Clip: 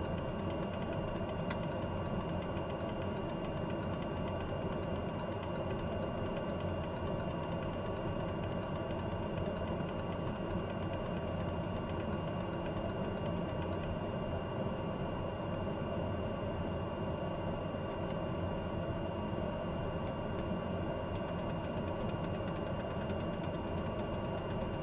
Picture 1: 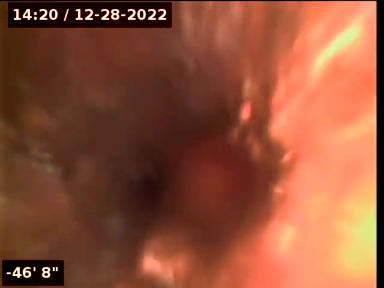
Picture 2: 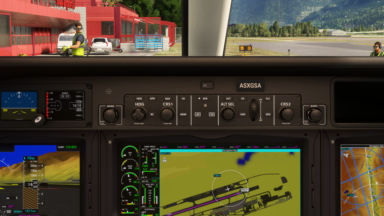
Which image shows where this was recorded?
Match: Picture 2